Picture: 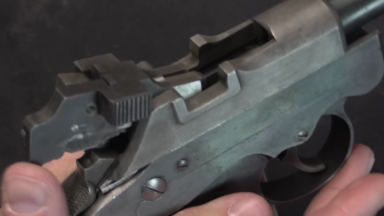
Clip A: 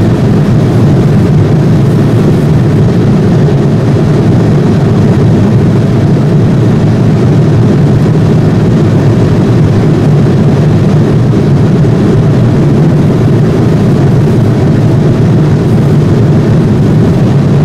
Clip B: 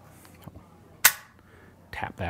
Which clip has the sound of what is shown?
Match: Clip B